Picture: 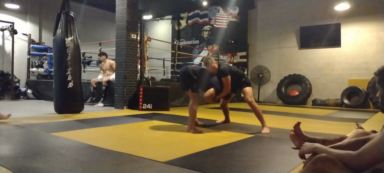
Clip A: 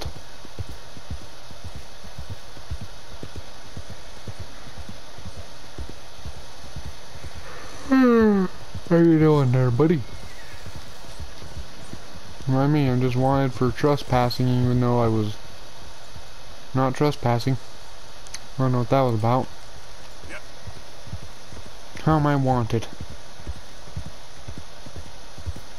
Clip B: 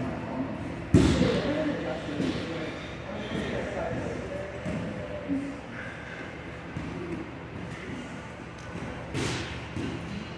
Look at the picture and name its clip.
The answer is B